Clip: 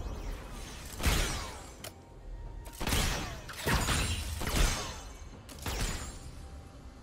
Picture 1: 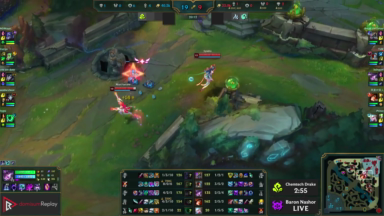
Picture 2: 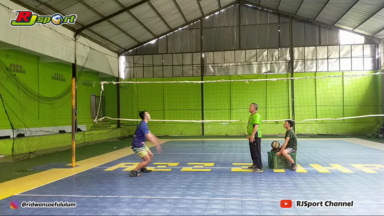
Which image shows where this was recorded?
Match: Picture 1